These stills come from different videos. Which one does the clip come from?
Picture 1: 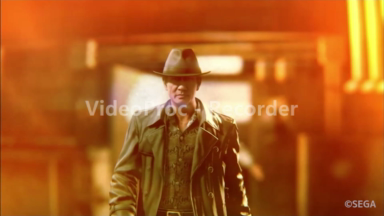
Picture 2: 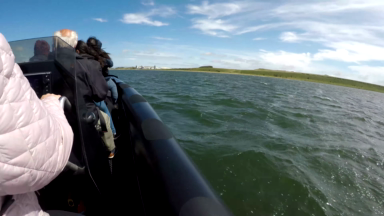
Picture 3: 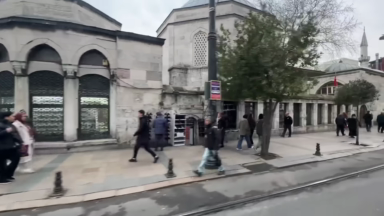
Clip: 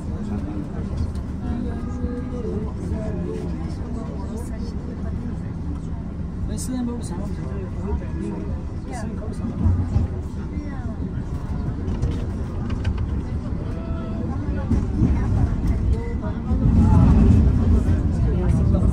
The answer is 3